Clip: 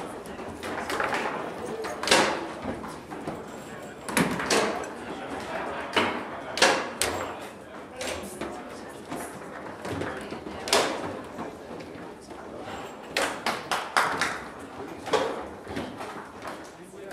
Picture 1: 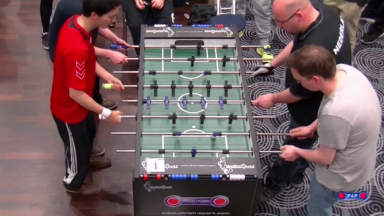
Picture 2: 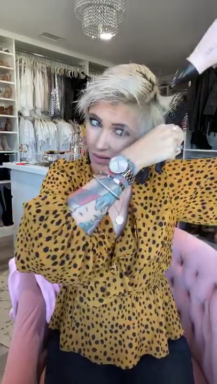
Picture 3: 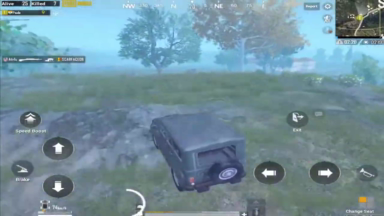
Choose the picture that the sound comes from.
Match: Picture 1